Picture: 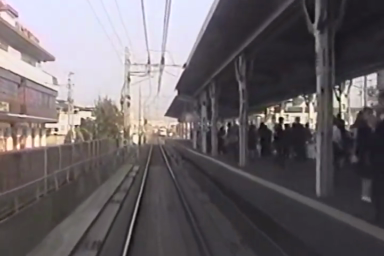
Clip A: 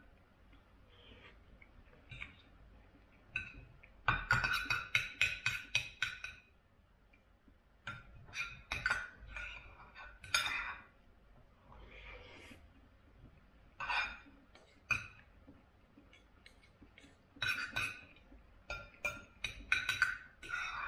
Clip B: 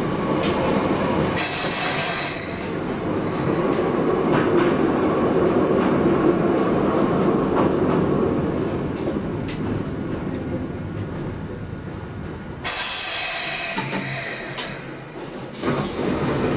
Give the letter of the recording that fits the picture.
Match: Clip B